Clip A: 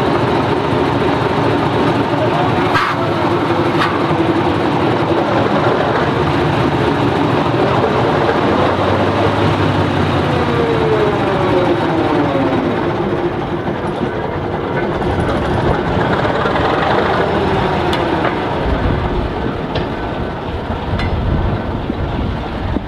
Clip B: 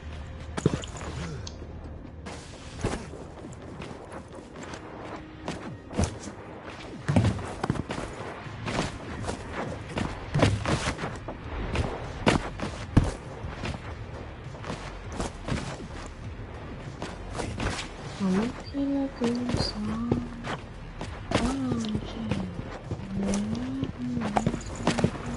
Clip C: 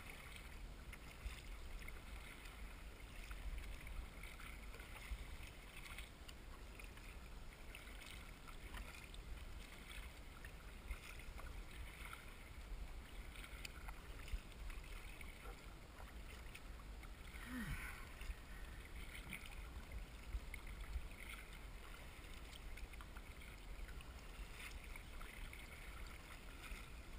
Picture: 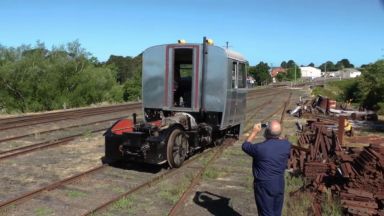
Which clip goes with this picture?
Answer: A